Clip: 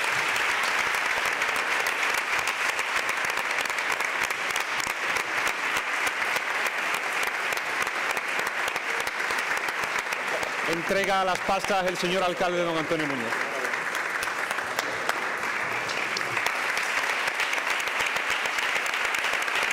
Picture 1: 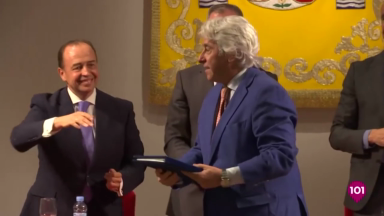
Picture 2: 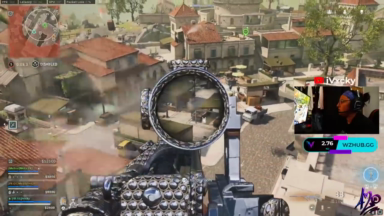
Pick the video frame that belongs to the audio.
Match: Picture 1